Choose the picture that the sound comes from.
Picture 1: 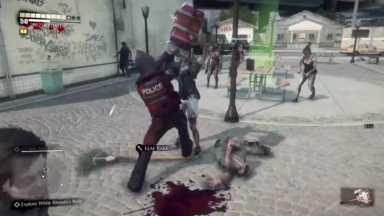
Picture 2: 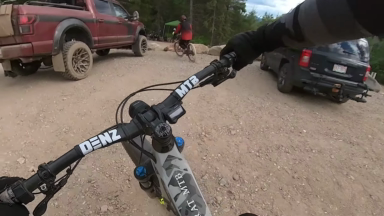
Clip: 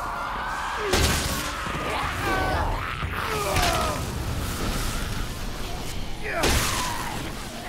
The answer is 1